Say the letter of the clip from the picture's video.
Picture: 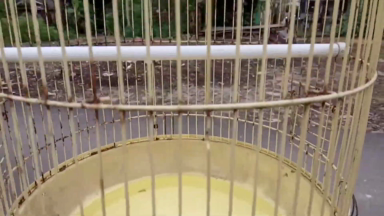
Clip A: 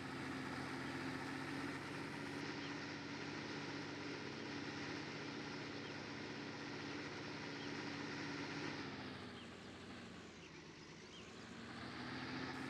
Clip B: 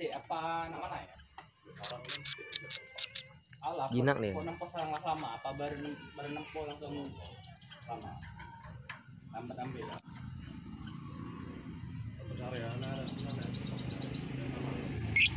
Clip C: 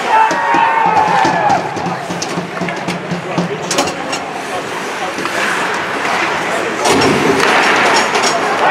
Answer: B